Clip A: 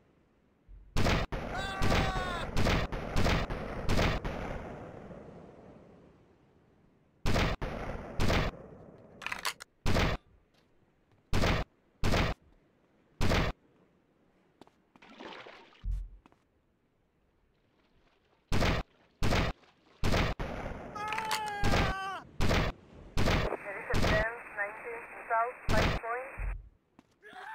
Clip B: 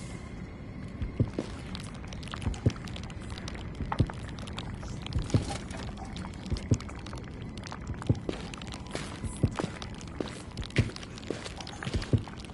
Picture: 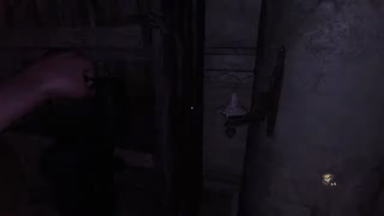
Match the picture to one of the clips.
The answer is B